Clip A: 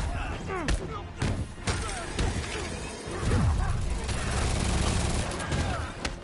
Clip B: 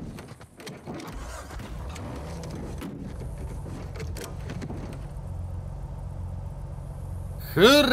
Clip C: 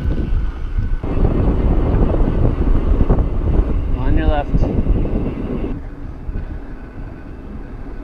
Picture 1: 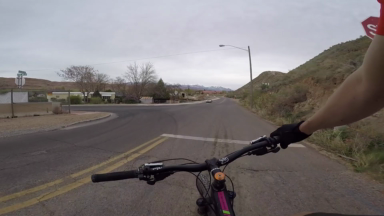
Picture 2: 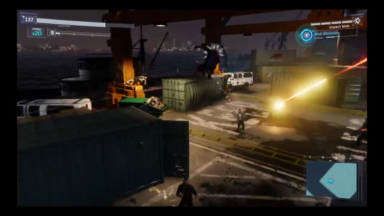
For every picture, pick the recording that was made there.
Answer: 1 C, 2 A